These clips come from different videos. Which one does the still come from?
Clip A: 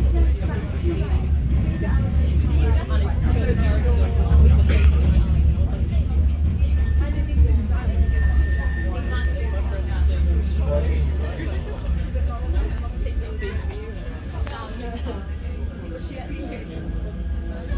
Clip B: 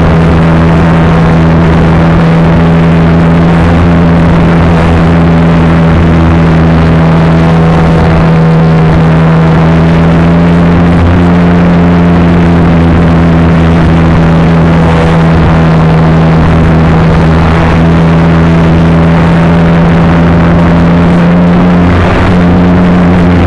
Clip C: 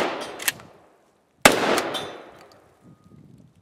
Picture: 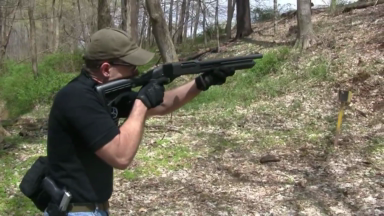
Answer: C